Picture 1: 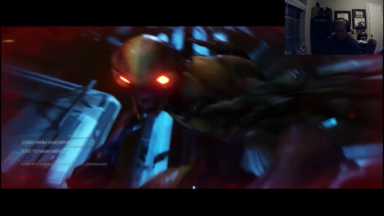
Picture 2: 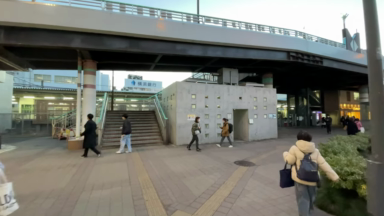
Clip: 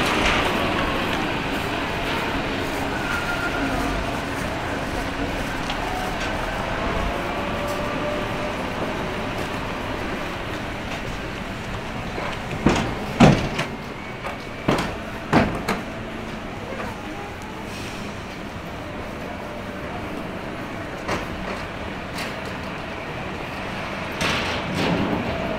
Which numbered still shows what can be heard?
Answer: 2